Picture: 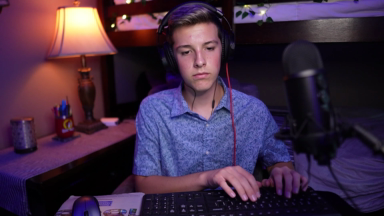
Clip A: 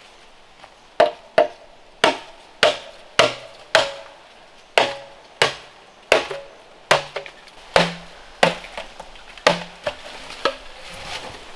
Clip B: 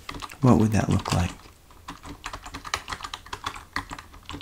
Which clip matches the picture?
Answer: B